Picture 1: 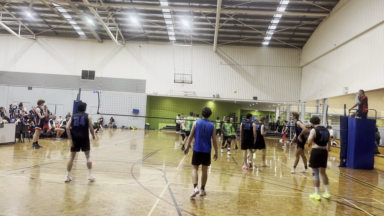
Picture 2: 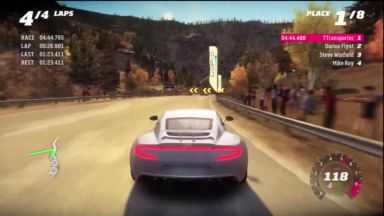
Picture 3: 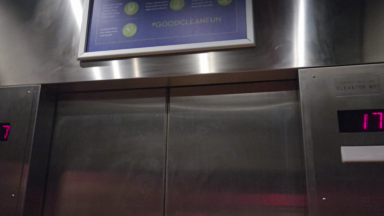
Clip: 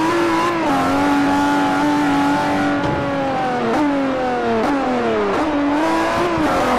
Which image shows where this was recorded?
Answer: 2